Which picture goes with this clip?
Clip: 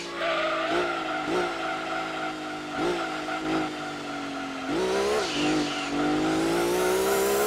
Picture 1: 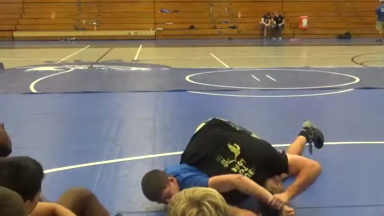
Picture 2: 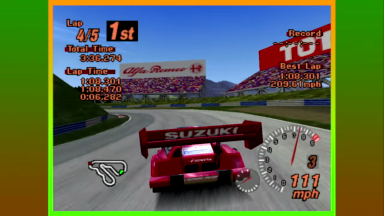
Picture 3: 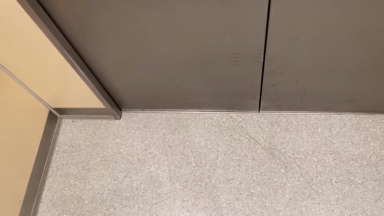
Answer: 2